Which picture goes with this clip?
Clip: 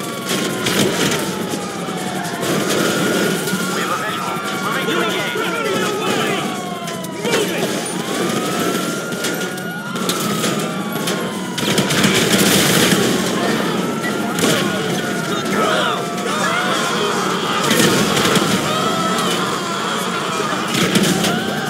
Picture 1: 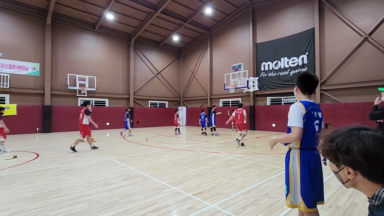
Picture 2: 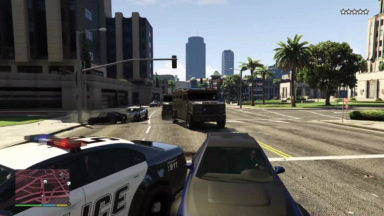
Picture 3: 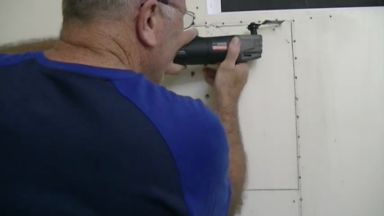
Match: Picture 2